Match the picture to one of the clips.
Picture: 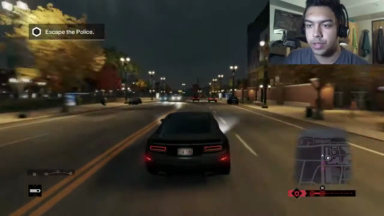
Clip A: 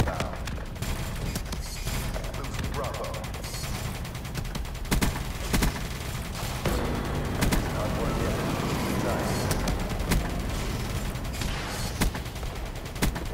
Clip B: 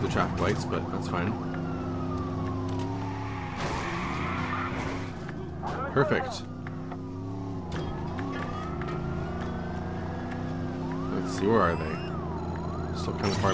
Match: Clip B